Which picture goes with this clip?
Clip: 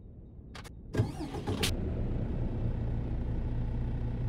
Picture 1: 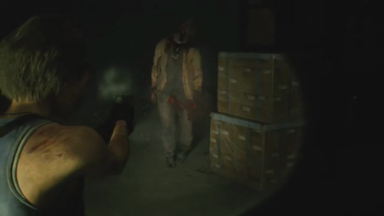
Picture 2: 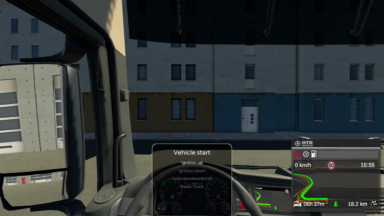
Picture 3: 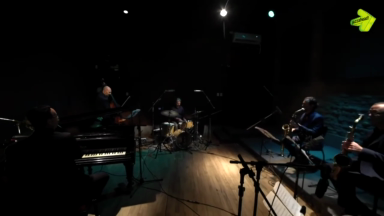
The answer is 2